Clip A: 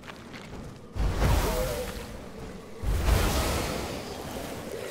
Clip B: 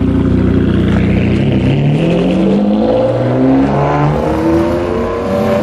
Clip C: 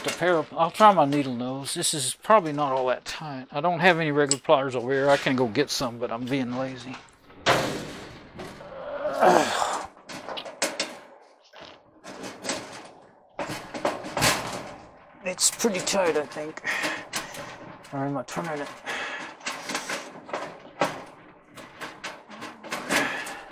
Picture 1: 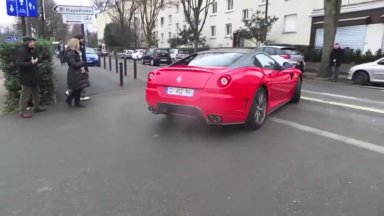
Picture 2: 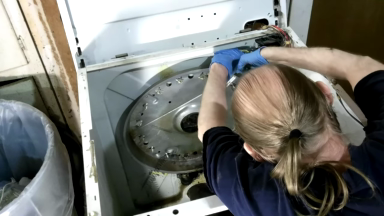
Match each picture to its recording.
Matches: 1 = B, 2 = C